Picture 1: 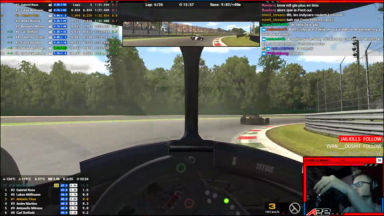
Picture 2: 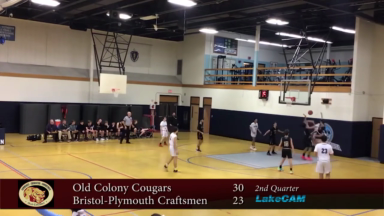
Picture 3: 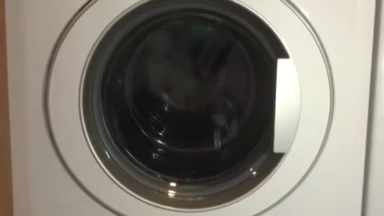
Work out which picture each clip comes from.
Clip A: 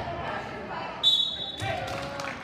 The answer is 2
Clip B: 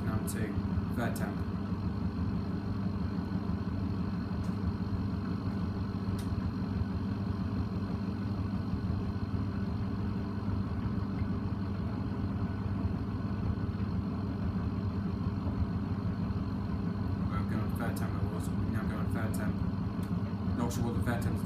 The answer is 3